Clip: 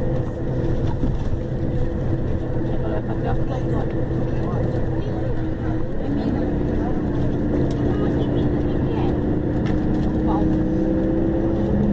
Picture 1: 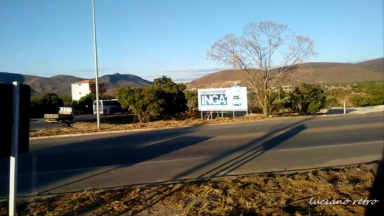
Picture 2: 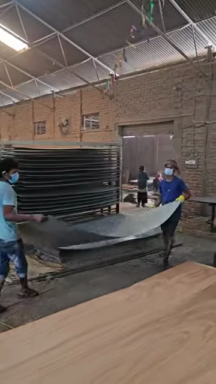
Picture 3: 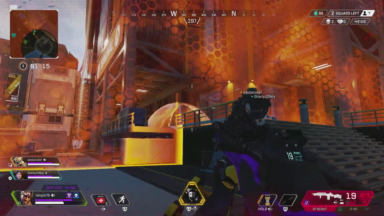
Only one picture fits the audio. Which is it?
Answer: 1